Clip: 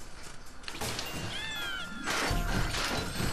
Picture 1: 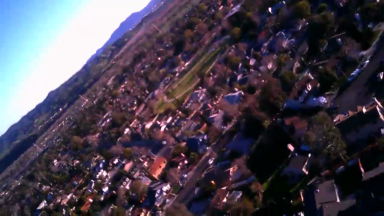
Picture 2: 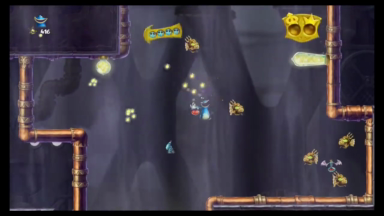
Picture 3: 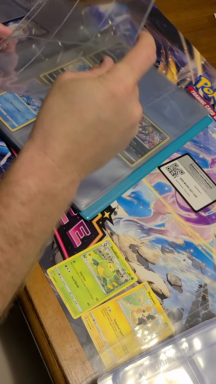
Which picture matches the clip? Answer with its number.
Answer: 2